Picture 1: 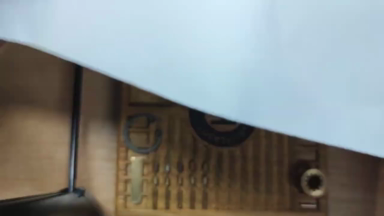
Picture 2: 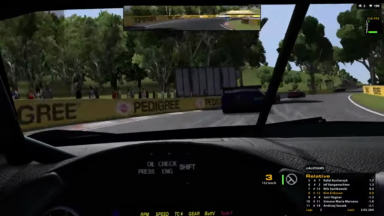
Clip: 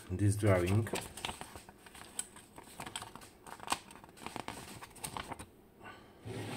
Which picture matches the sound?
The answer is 1